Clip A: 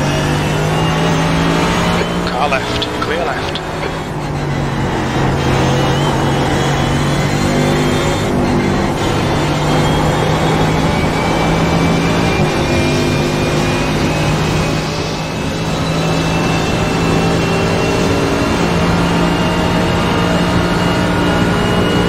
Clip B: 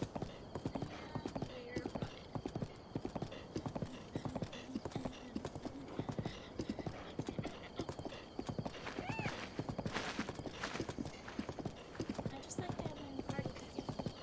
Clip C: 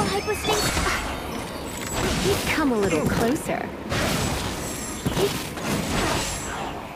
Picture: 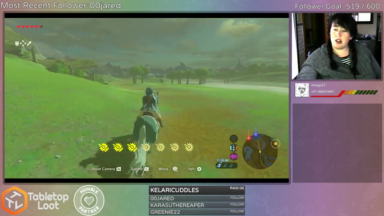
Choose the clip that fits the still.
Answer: B